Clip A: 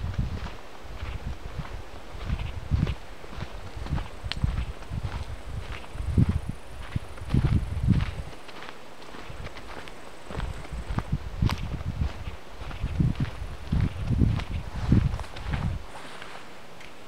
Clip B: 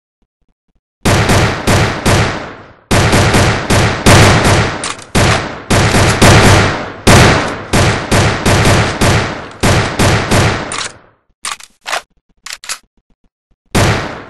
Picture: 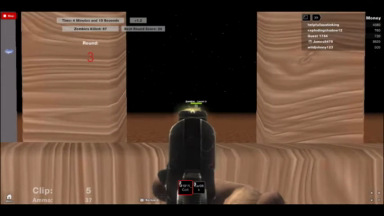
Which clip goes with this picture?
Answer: B